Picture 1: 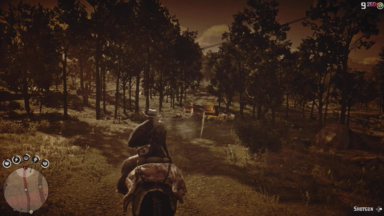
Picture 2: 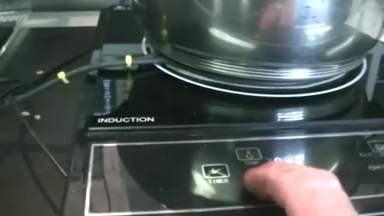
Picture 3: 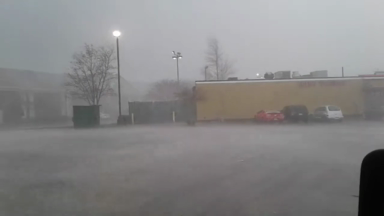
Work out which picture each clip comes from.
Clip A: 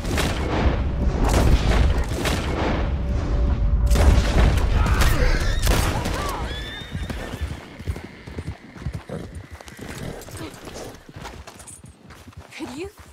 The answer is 1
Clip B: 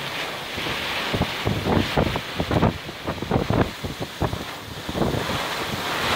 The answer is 3